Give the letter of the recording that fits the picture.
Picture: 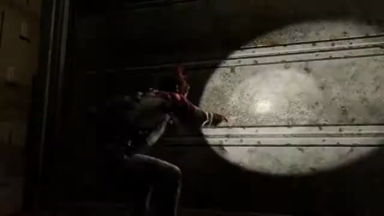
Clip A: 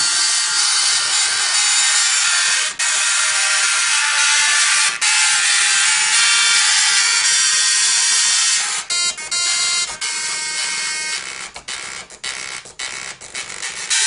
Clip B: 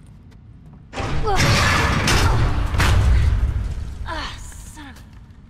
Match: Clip B